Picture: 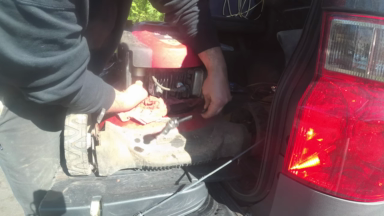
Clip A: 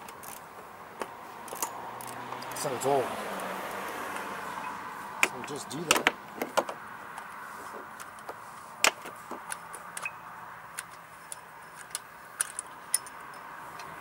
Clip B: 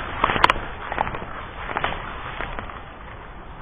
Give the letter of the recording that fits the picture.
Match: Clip A